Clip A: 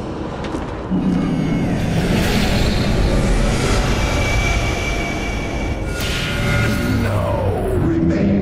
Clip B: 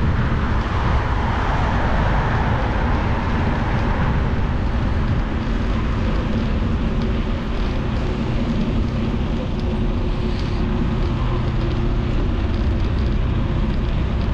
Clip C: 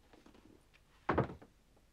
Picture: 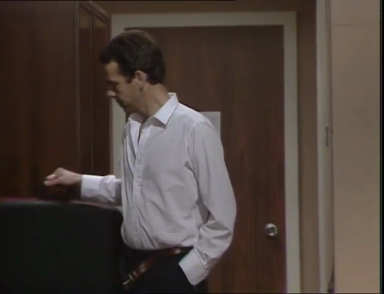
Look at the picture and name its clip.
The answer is C